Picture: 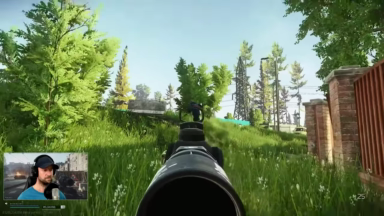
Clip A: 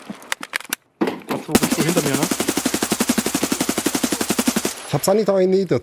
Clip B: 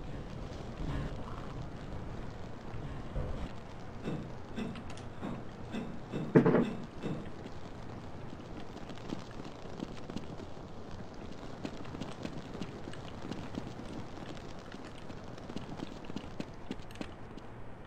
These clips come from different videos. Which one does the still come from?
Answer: A